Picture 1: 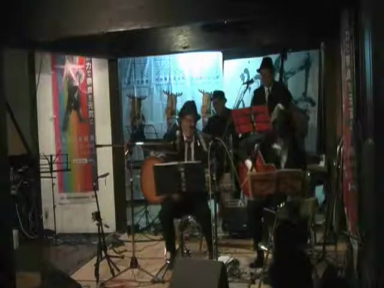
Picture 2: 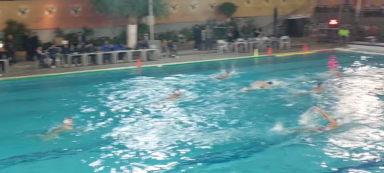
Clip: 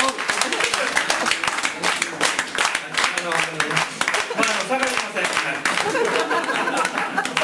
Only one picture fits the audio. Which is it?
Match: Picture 1